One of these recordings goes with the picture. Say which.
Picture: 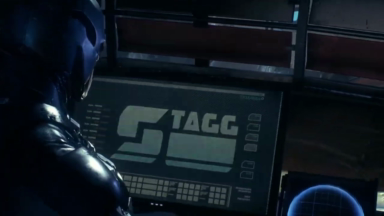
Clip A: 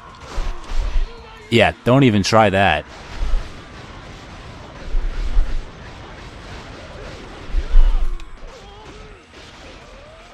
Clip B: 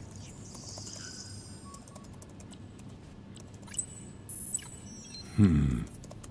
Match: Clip B